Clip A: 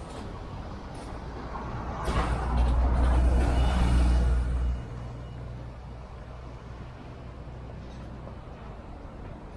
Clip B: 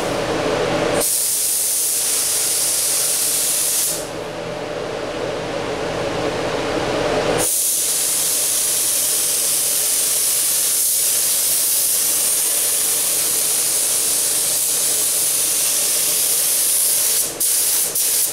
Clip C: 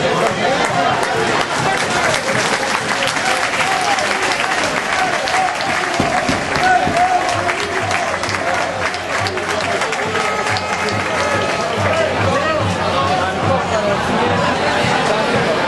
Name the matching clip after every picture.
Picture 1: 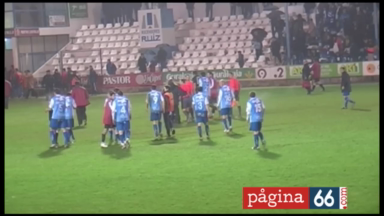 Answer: C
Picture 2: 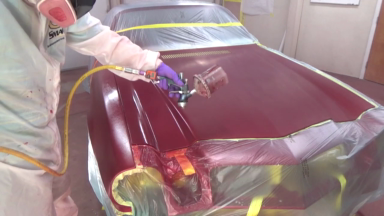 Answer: B